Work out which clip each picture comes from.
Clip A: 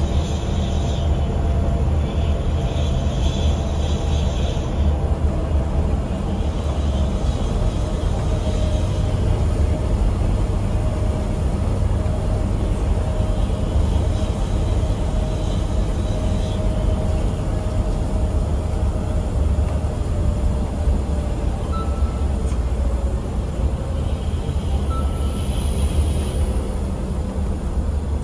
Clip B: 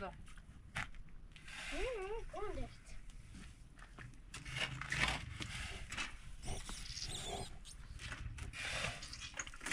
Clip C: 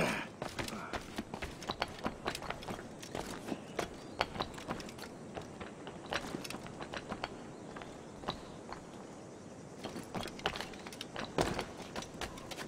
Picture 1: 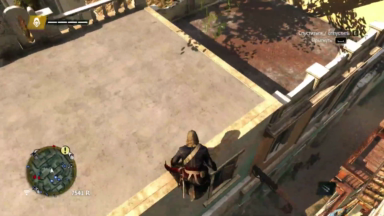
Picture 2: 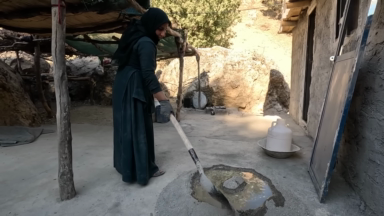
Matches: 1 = C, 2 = B